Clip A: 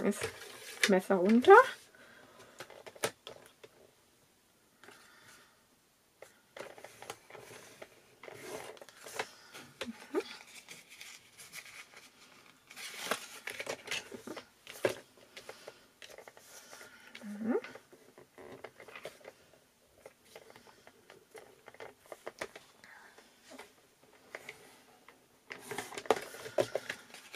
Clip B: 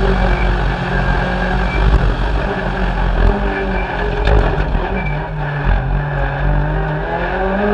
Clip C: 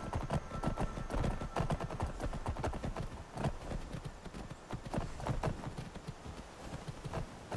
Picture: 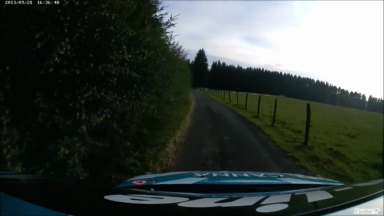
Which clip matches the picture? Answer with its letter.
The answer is B